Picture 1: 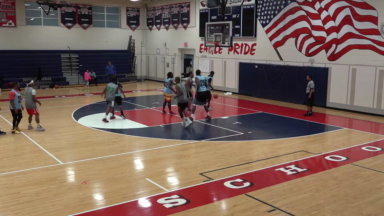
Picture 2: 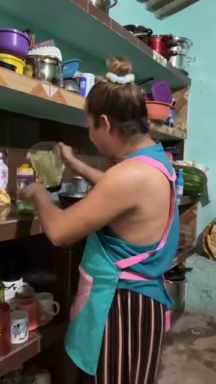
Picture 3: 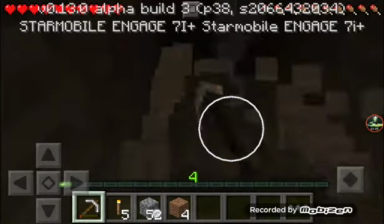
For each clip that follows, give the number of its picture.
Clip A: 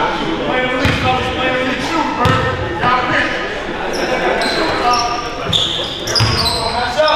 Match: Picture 1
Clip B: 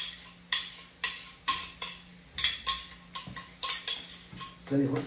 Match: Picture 2